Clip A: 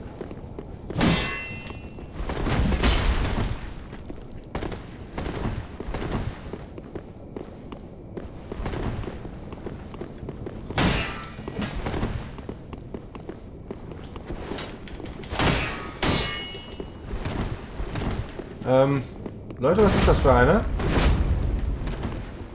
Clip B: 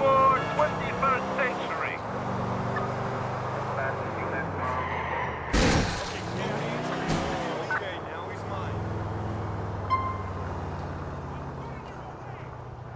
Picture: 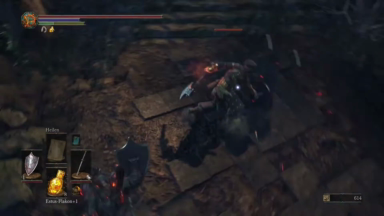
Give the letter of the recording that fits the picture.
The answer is A